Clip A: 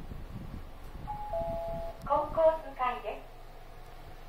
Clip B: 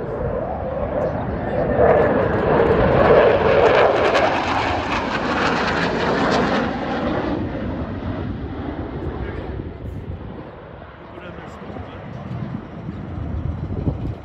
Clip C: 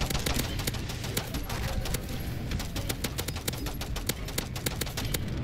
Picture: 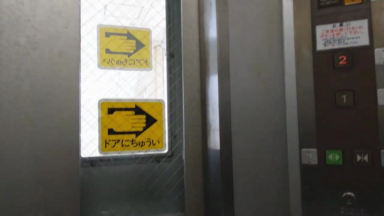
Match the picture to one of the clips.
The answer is A